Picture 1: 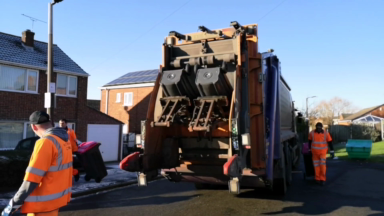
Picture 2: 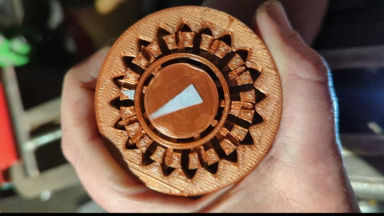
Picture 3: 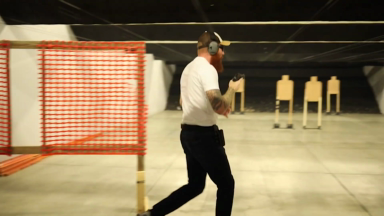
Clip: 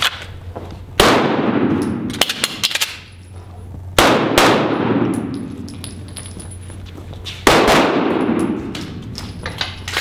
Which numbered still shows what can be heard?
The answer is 3